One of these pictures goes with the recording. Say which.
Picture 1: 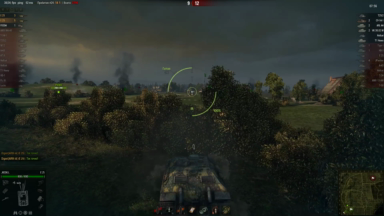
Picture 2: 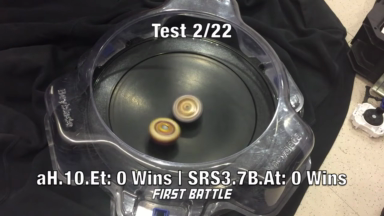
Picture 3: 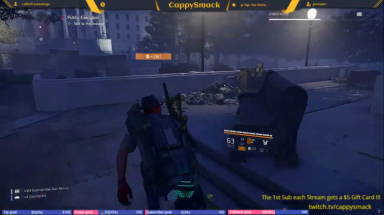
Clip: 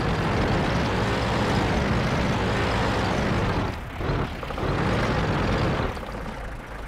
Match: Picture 1